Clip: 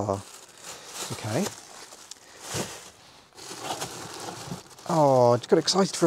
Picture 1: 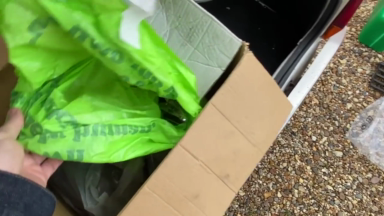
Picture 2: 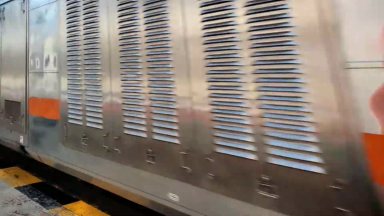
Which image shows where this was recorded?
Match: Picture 1